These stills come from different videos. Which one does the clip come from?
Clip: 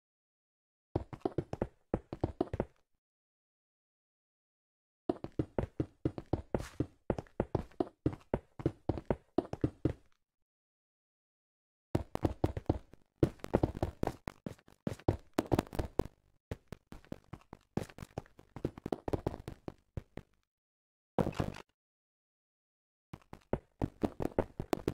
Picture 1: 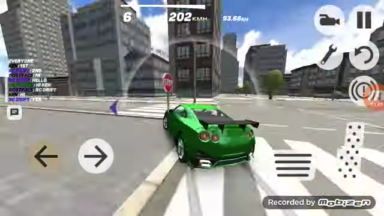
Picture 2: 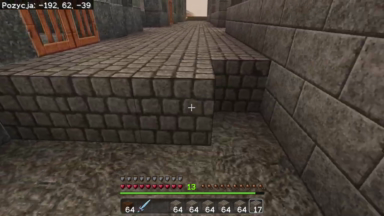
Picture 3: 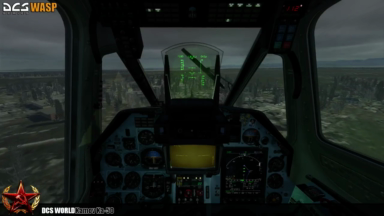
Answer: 2